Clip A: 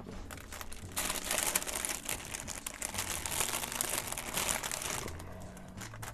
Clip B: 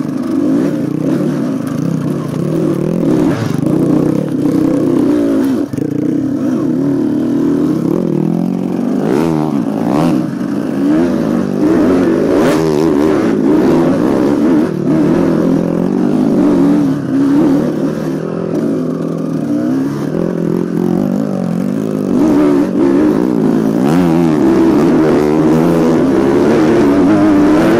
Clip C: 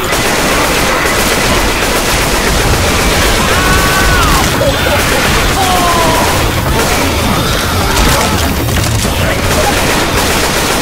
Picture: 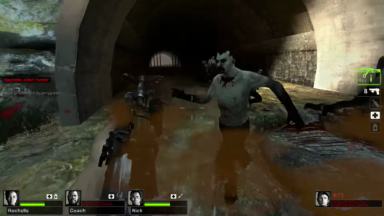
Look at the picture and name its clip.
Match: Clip C